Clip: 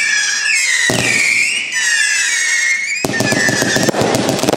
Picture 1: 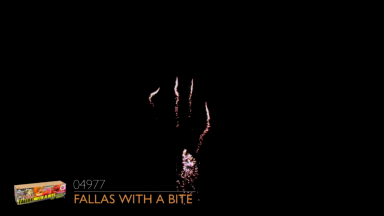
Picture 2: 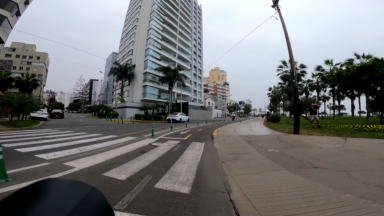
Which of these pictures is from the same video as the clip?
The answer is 1